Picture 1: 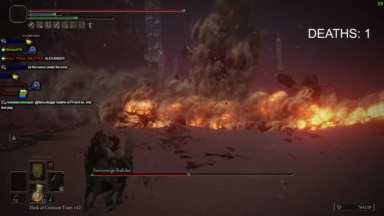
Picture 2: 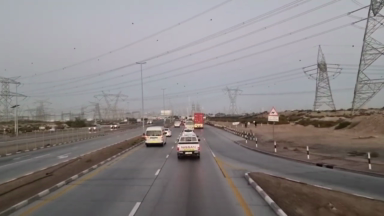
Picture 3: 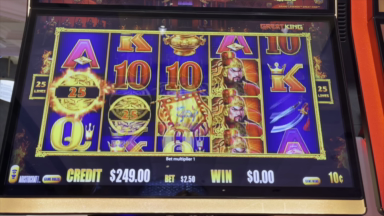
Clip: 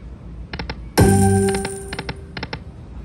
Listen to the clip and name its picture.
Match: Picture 3